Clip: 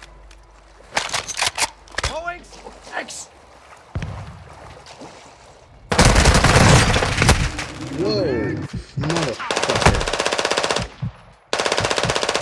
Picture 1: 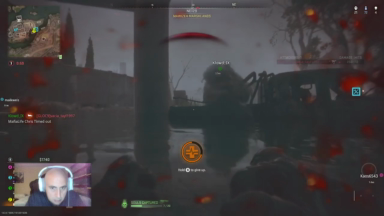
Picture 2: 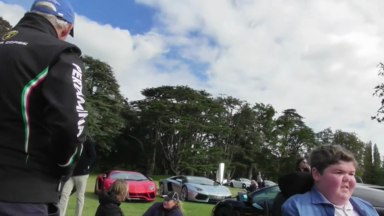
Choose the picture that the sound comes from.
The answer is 1